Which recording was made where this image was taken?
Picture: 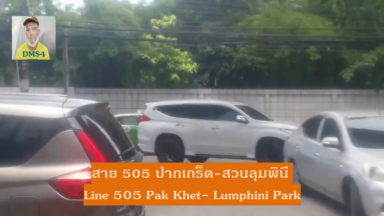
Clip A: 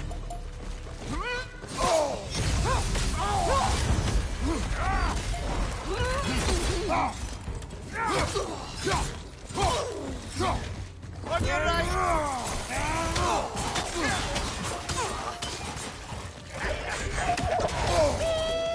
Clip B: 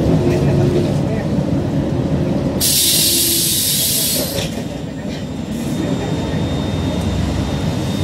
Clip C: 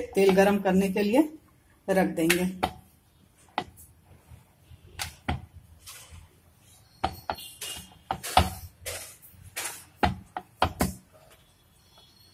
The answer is B